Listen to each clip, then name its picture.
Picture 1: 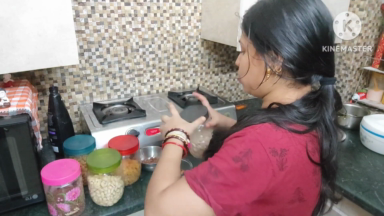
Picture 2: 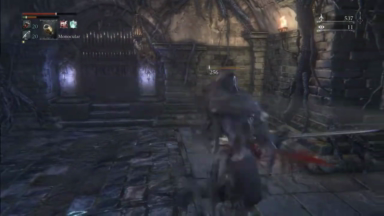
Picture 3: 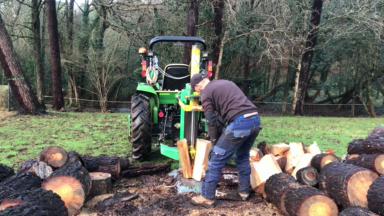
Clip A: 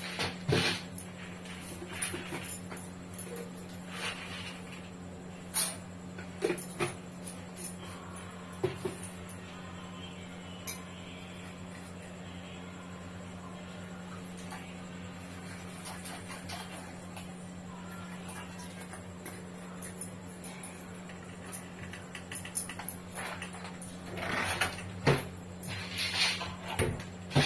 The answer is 1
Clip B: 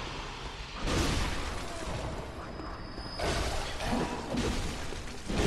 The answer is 2